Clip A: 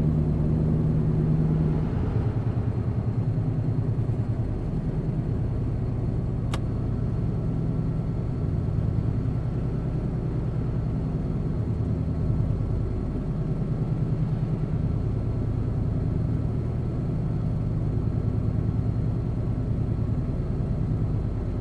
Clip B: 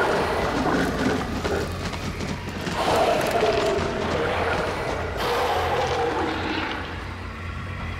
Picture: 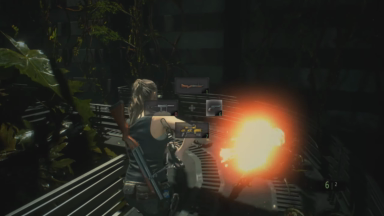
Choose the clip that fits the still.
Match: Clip B